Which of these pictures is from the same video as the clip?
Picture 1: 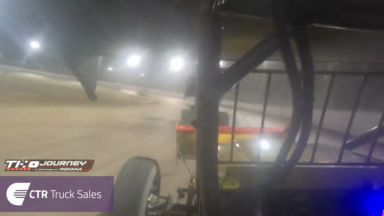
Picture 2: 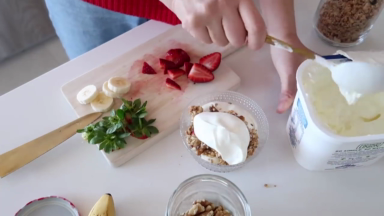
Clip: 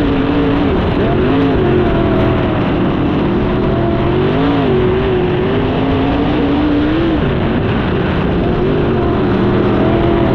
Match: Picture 1